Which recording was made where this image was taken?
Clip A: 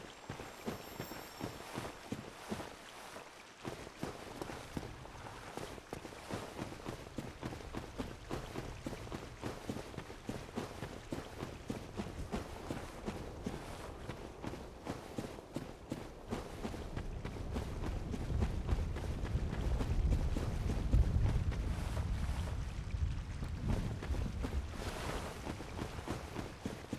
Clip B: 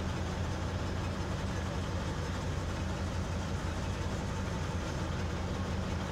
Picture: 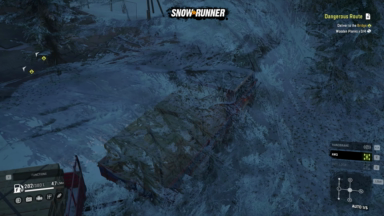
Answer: B